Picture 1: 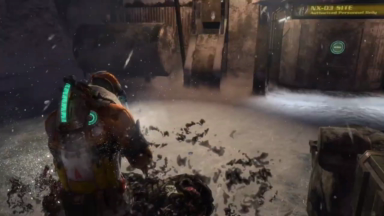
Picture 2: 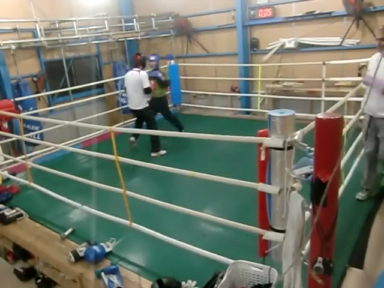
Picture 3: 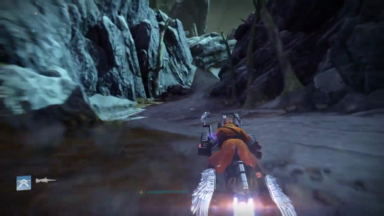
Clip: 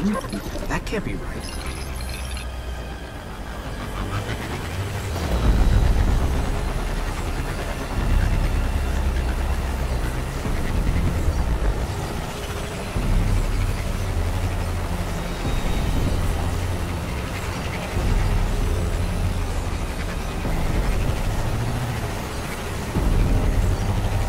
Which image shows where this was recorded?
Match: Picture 3